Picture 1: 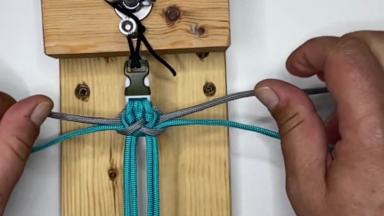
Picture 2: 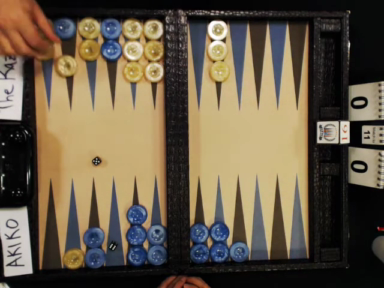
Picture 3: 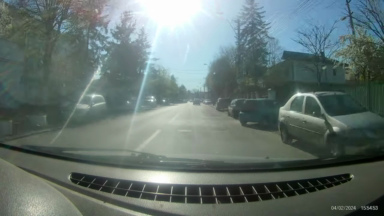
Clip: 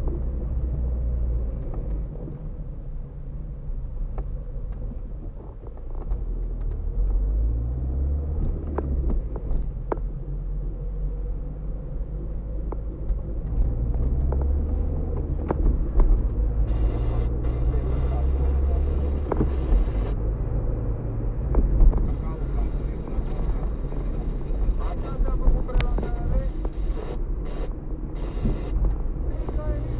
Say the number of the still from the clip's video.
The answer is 3